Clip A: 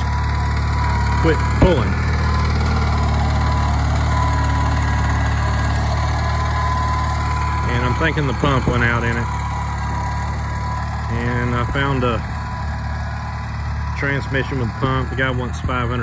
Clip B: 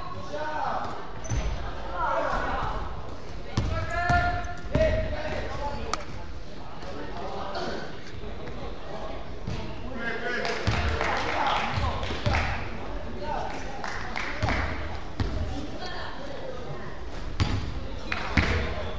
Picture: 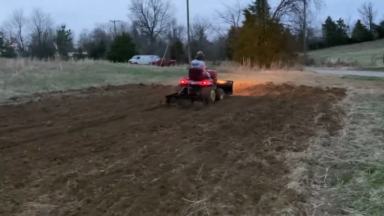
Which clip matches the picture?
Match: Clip A